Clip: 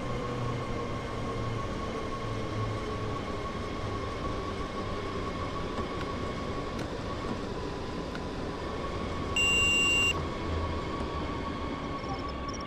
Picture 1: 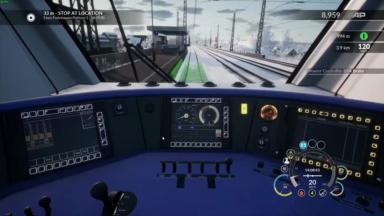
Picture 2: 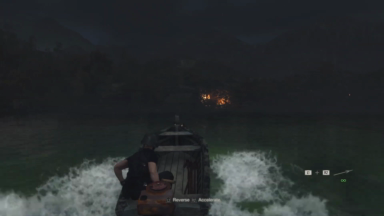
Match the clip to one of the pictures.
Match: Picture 1